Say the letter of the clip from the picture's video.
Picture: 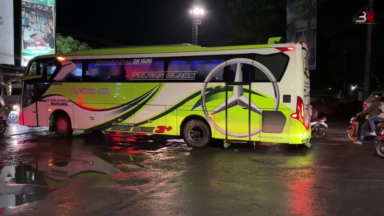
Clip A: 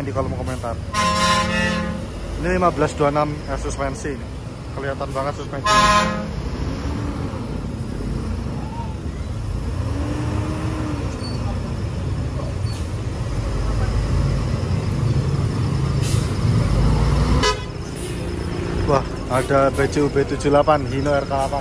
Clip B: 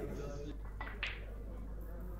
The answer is A